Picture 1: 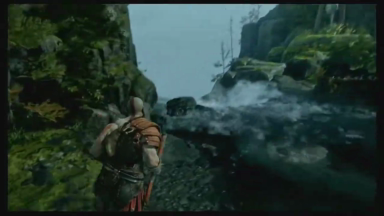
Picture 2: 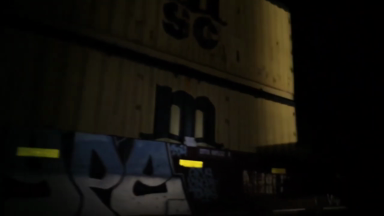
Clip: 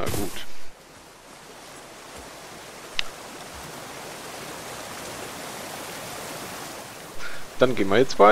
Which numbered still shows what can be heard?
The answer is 1